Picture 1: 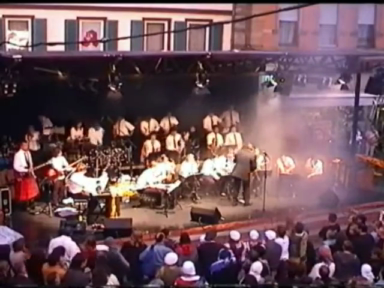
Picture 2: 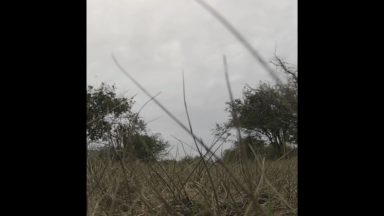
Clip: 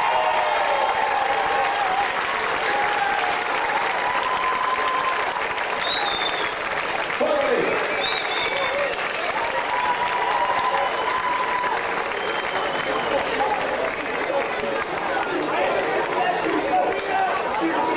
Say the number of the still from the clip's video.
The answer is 1